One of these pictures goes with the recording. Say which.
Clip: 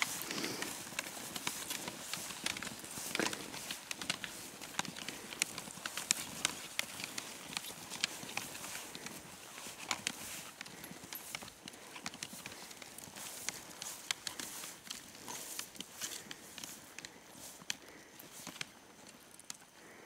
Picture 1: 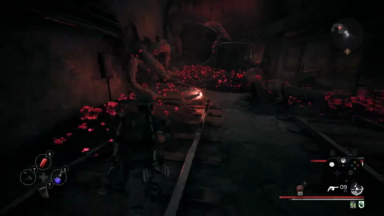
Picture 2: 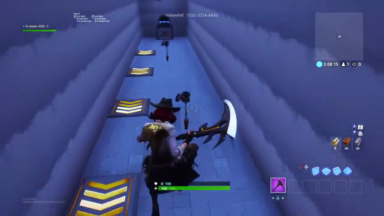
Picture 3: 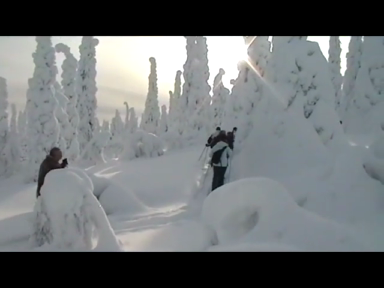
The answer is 3